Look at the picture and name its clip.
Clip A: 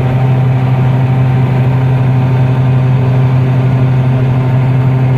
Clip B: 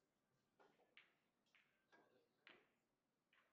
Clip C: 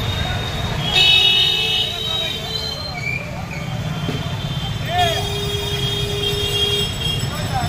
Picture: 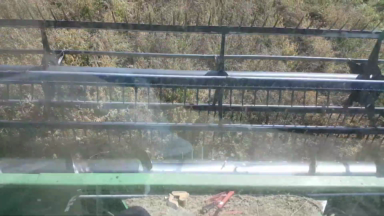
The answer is A